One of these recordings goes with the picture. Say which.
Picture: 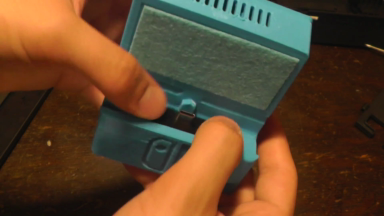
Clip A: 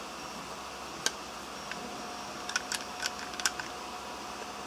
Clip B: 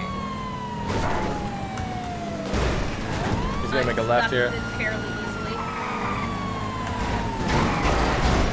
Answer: A